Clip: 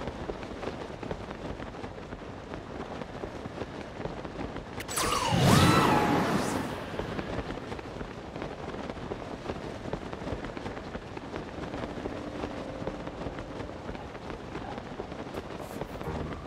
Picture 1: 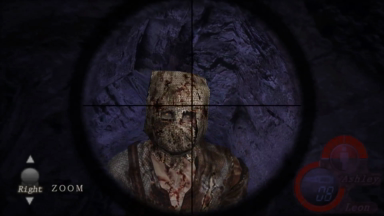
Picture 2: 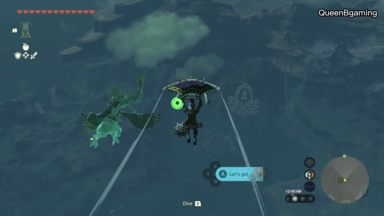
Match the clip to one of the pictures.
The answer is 2